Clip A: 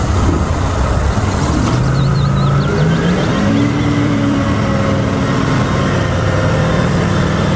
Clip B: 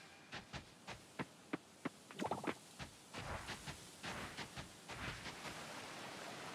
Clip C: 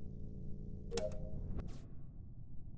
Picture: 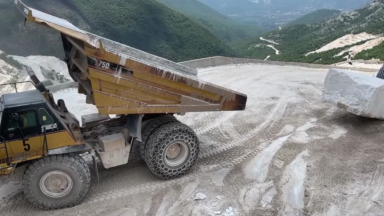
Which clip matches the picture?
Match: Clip A